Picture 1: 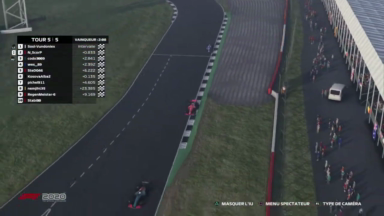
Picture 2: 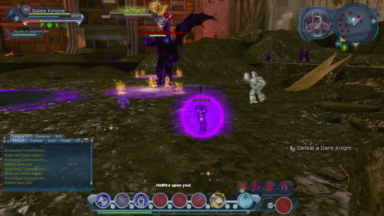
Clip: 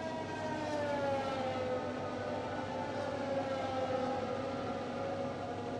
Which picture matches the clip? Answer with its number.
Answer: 1